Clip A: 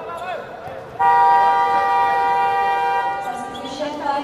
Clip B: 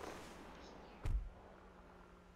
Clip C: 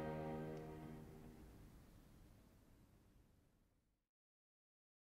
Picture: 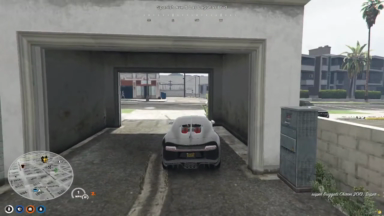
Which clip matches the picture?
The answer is B